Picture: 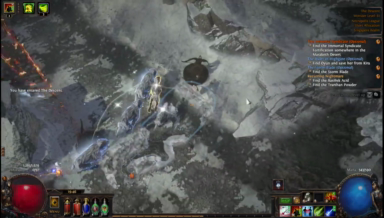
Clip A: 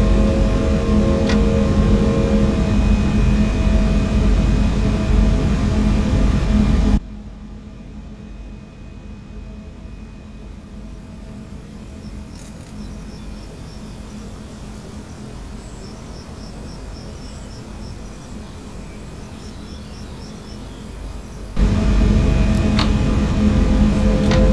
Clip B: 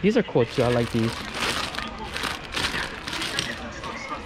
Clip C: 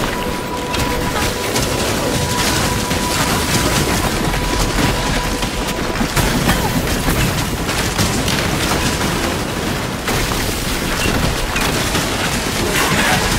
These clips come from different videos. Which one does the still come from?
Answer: C